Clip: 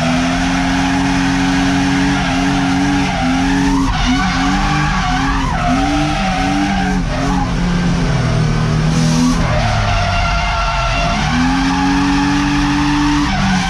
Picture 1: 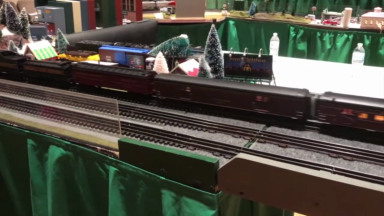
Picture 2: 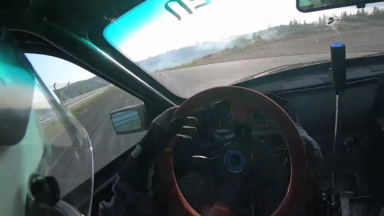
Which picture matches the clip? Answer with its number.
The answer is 2